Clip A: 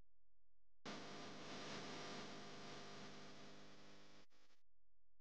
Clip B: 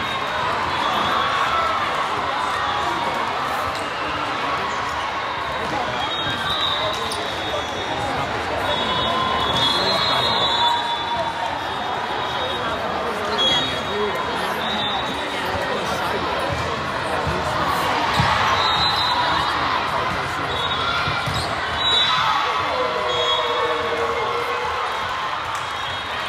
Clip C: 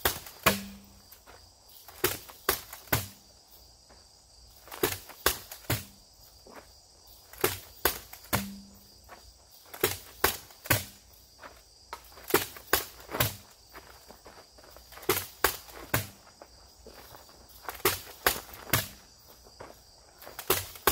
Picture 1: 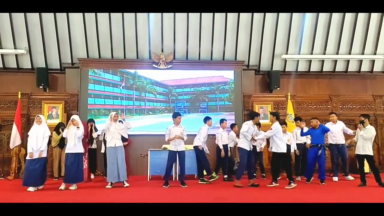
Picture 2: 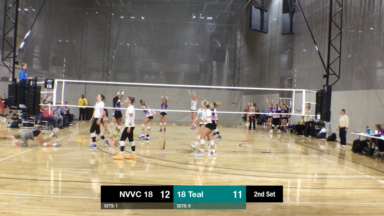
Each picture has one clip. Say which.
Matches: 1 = A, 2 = B